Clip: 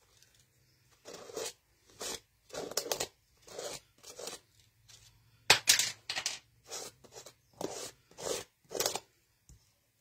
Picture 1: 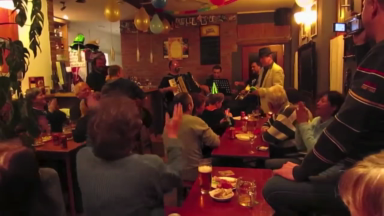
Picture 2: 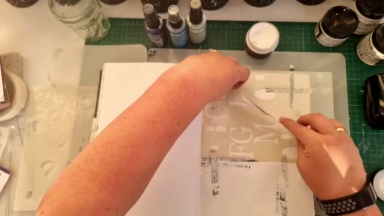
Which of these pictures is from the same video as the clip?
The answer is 2